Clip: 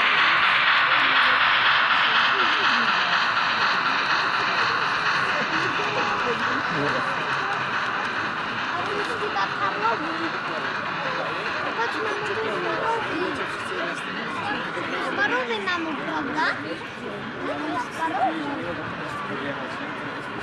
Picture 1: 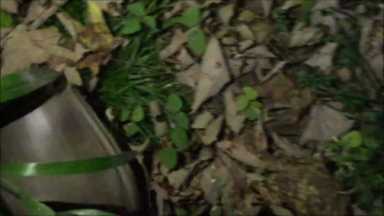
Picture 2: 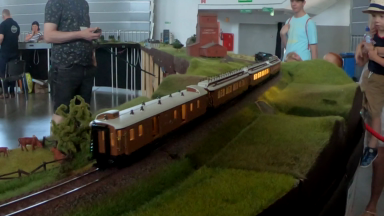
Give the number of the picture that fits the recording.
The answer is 2